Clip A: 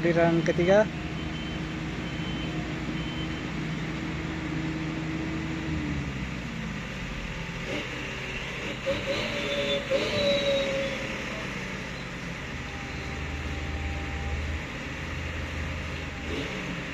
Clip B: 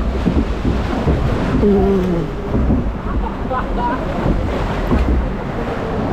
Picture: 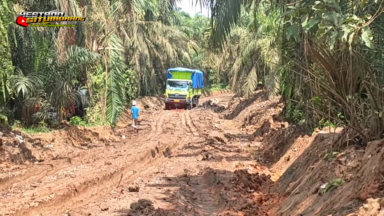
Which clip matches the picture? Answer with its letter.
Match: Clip A